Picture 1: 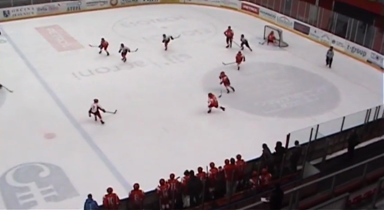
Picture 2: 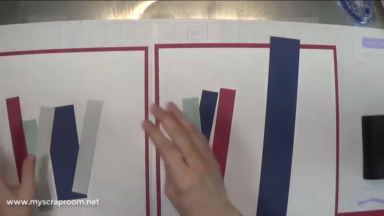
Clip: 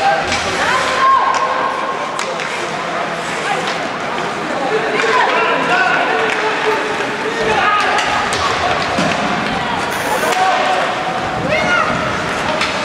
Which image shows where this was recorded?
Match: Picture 1